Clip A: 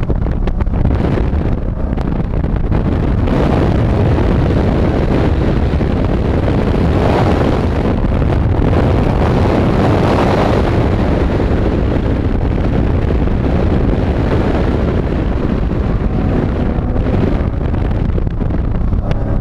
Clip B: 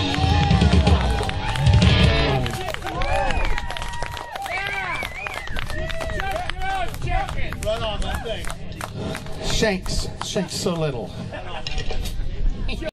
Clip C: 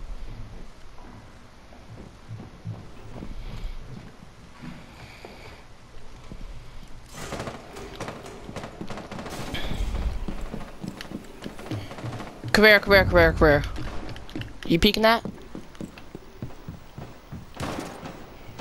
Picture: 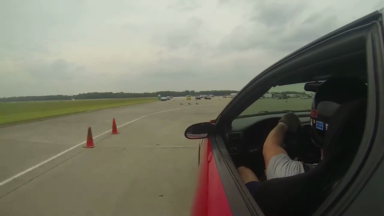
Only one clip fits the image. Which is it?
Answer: A